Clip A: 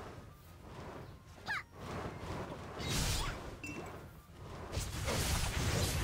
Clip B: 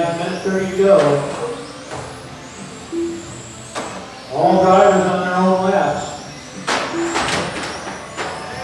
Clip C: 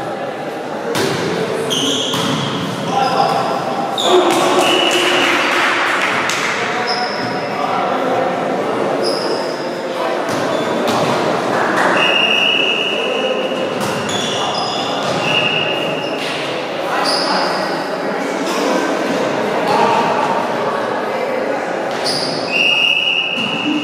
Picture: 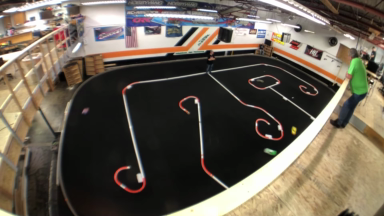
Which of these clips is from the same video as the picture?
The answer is B